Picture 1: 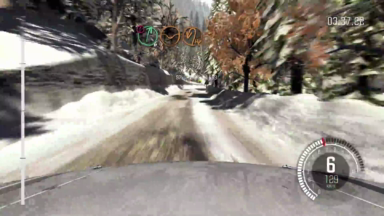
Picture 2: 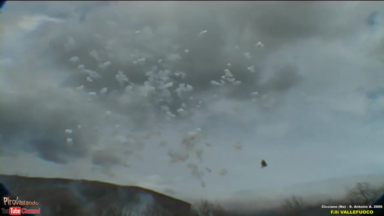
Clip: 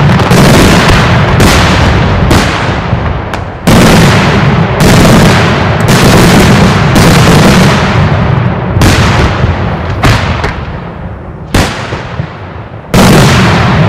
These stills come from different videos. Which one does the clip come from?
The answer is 2